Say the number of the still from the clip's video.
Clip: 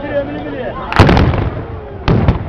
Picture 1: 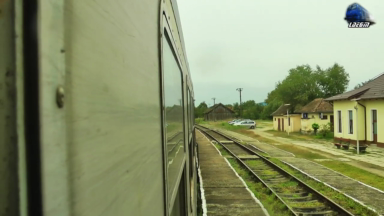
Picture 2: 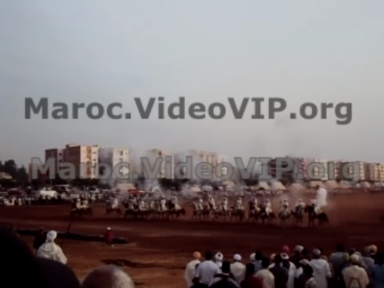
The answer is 2